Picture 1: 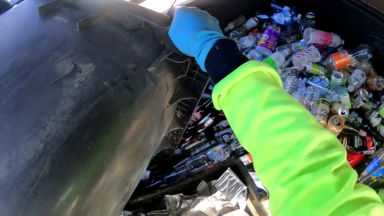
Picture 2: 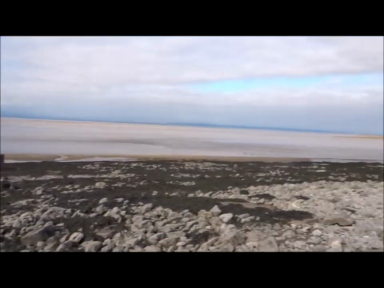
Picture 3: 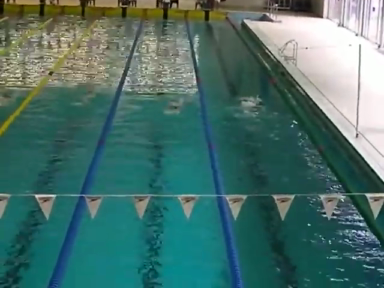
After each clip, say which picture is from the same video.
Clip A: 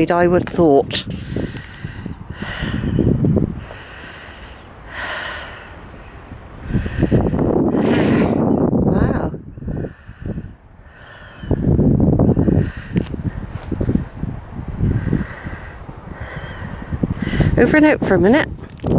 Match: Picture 2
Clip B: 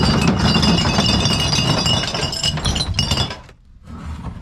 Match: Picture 1